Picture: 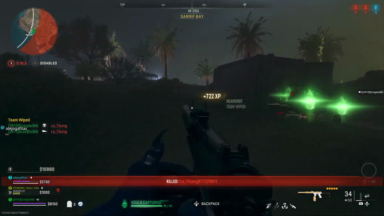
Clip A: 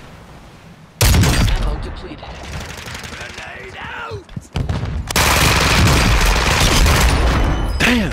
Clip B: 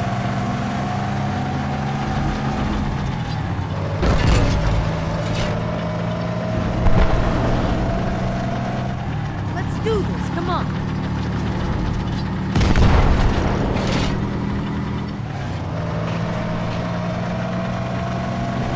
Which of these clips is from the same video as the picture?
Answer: A